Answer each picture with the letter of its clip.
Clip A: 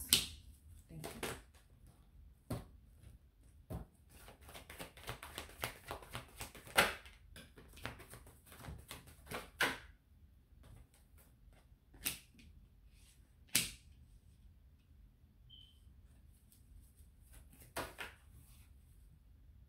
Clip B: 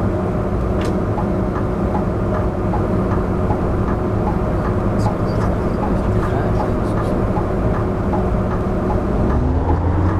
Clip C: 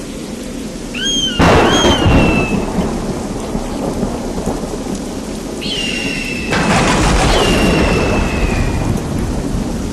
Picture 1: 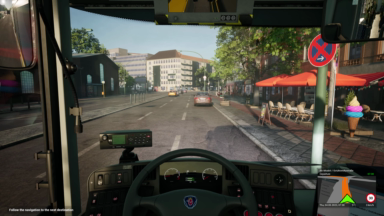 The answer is B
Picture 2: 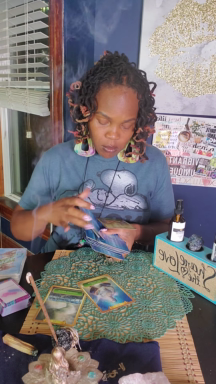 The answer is A